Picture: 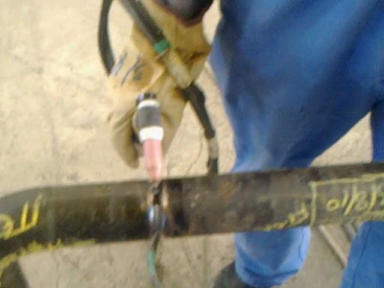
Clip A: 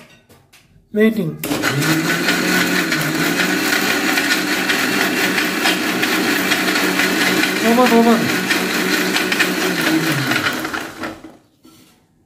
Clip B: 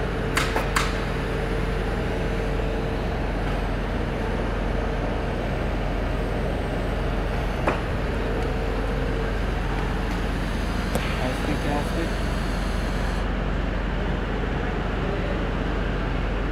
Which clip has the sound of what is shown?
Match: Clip B